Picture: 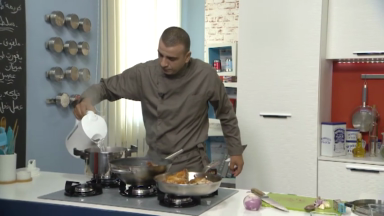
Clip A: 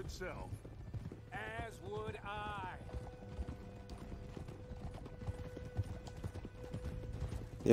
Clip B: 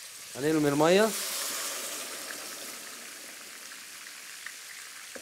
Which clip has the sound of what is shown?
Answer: B